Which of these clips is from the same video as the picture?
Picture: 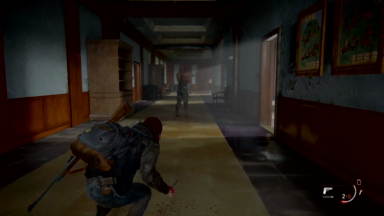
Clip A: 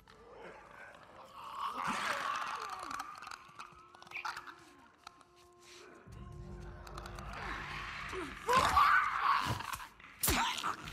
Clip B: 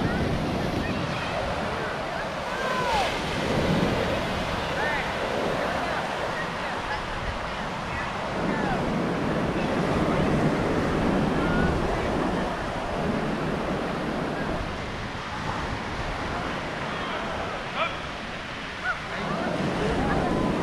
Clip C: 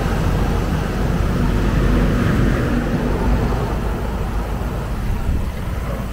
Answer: A